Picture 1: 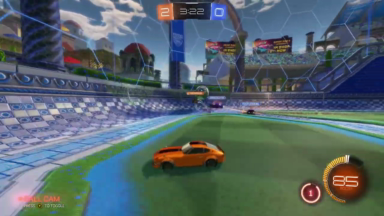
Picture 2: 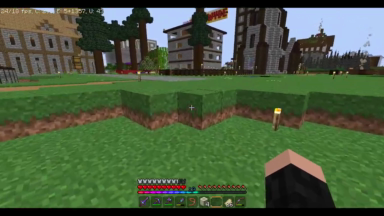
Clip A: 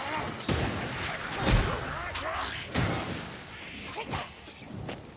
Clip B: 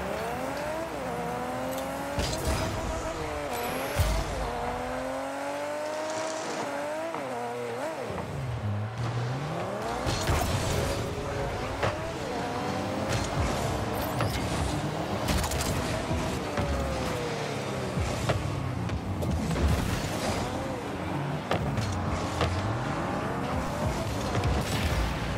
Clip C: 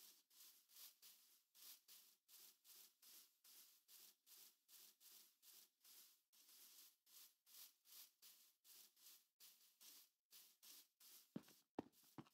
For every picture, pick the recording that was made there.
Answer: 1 B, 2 C